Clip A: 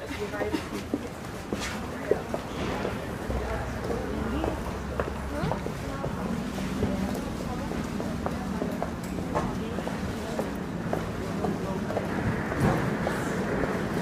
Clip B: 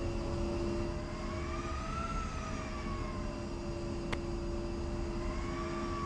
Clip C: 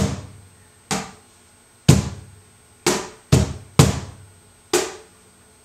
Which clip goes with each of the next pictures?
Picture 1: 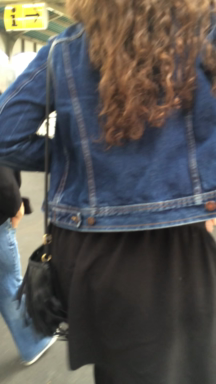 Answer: A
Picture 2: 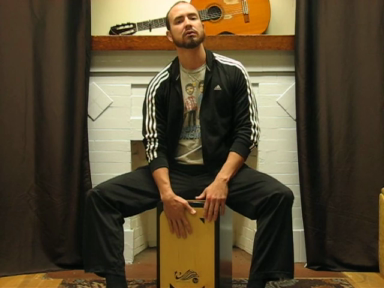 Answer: C